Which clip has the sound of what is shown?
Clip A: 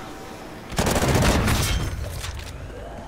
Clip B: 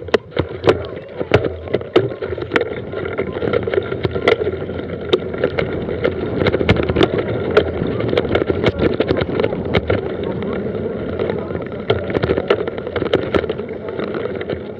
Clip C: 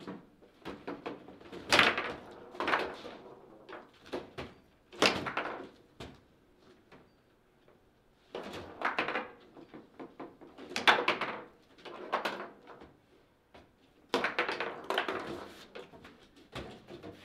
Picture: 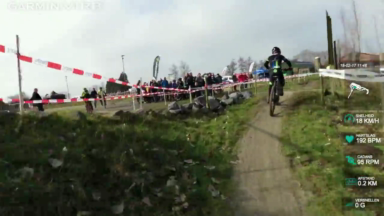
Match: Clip B